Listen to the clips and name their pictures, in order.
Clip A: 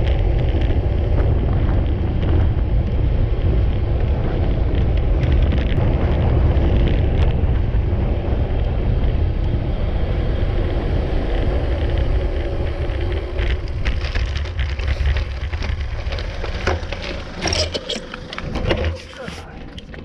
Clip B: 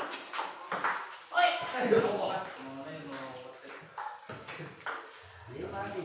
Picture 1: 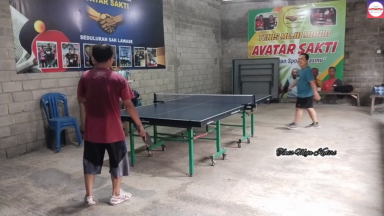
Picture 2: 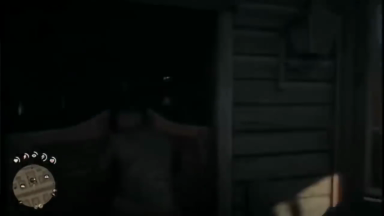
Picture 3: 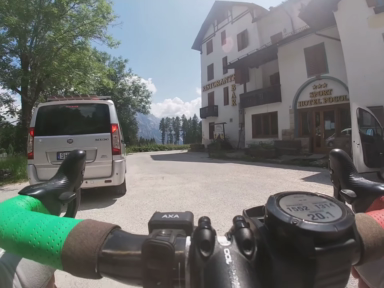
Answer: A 3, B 1